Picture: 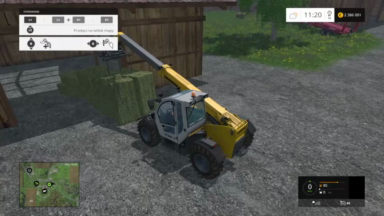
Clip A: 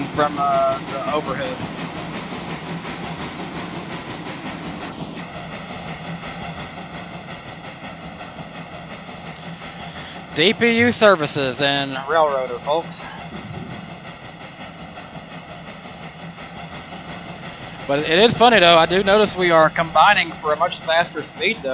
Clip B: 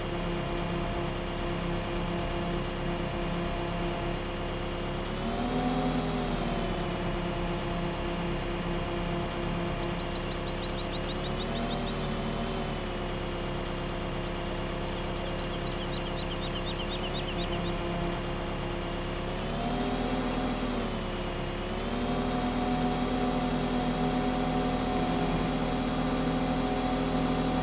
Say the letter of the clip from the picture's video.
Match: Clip B